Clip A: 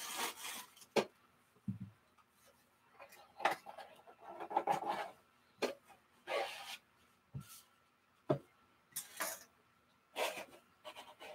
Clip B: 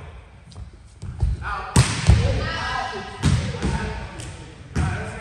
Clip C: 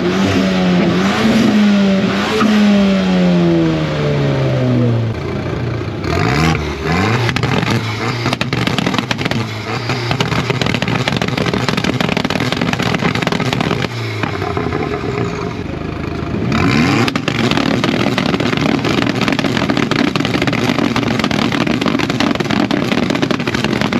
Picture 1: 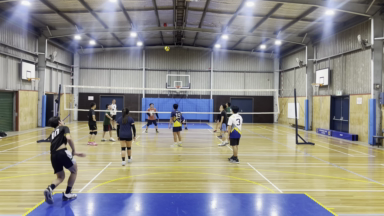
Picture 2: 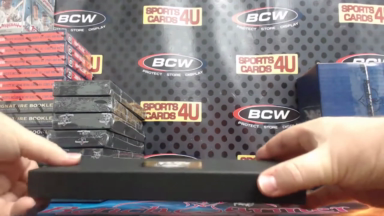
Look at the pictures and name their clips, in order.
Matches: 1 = B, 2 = A